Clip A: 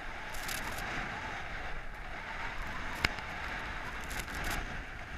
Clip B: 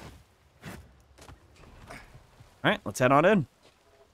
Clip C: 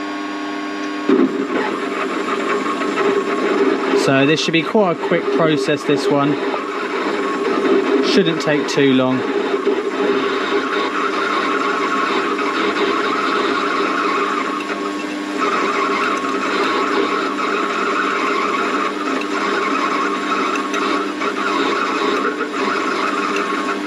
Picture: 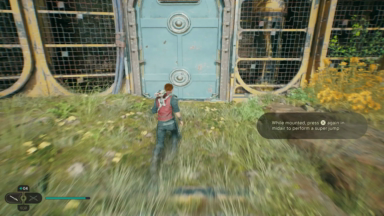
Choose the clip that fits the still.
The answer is B